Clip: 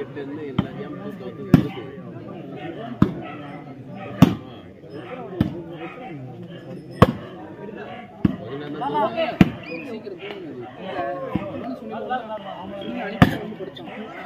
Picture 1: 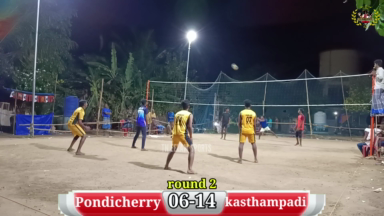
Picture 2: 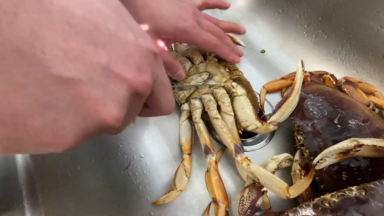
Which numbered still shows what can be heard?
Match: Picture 1